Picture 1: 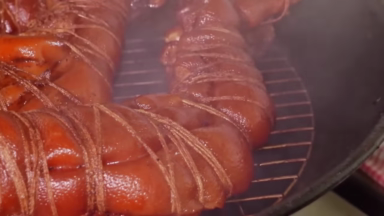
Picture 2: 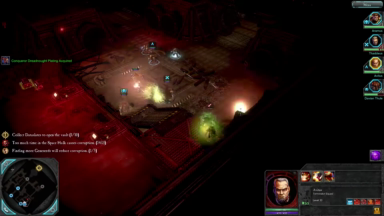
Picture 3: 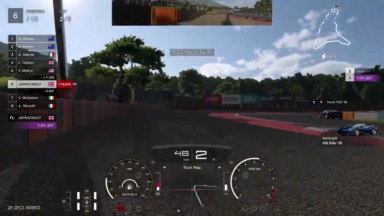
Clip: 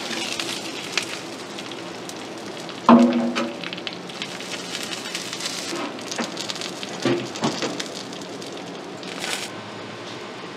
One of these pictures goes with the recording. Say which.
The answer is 1